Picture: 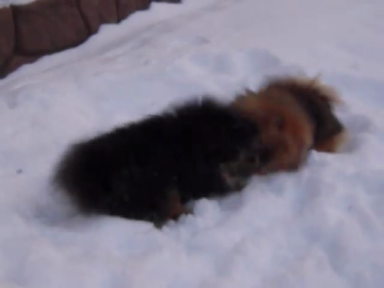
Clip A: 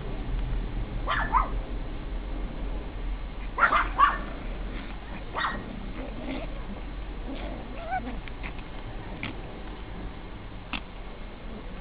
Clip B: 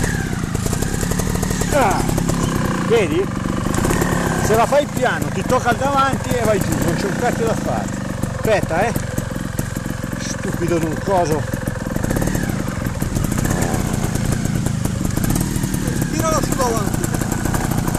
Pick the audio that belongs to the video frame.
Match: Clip A